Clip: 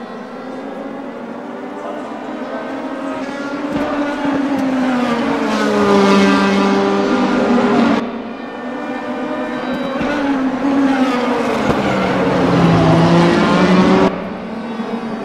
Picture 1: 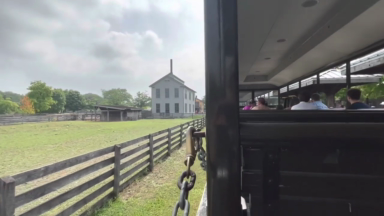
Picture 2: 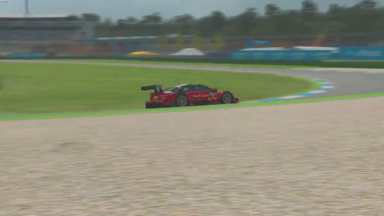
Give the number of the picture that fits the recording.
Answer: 2